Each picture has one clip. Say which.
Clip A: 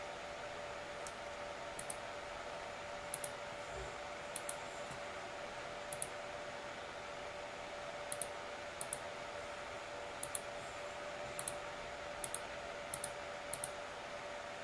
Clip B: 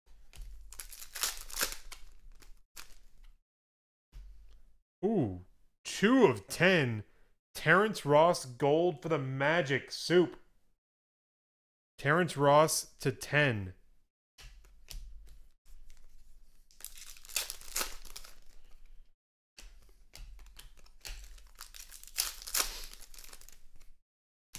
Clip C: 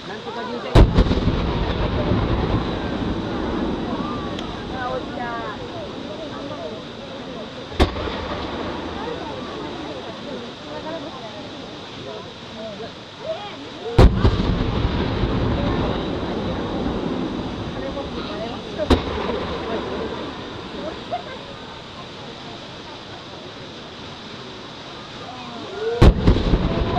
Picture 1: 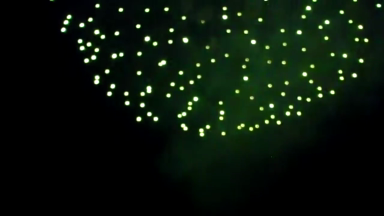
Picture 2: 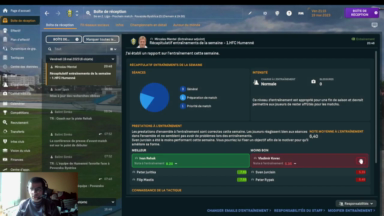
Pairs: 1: C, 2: A